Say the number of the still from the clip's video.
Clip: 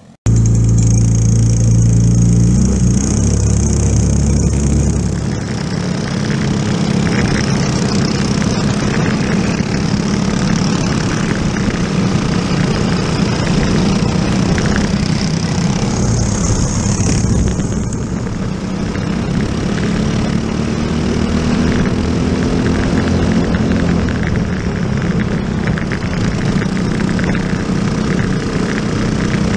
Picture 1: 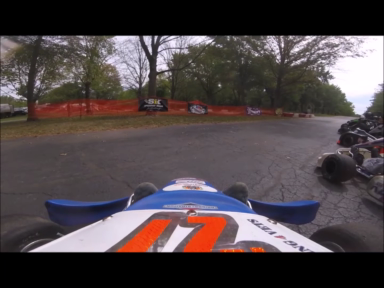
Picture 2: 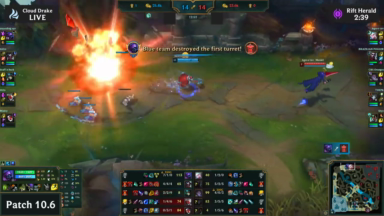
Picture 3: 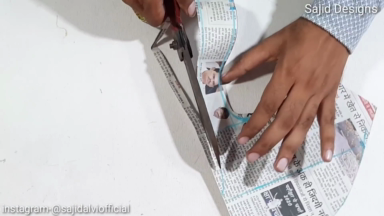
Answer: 1